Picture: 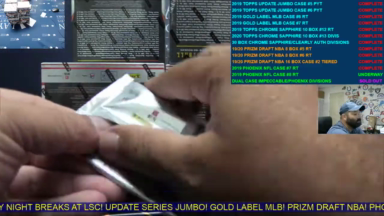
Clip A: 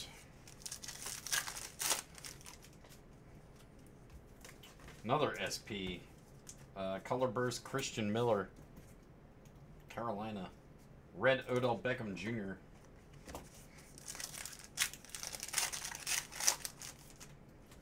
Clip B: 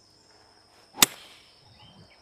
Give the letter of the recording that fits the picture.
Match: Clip A